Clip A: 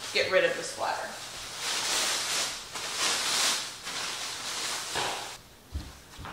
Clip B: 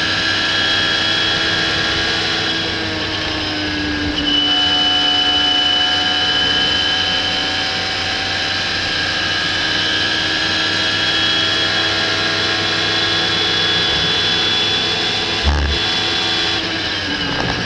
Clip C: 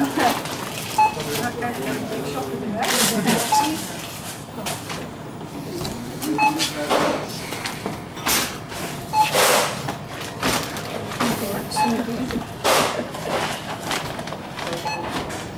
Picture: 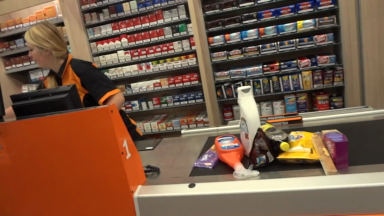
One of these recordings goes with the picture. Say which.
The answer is C